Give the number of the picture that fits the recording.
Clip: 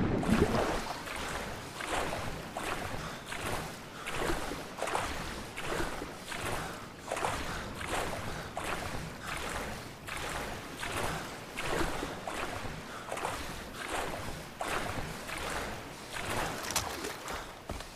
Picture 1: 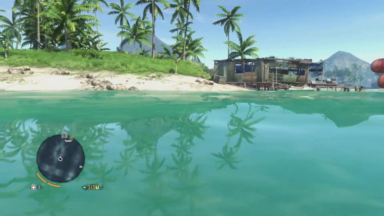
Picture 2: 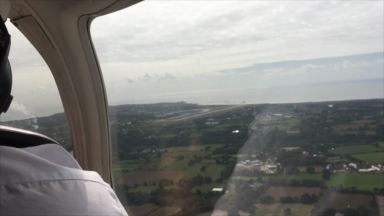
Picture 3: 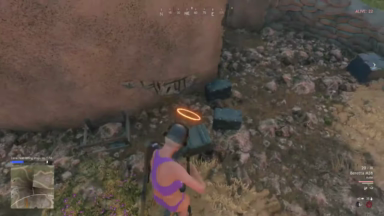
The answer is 1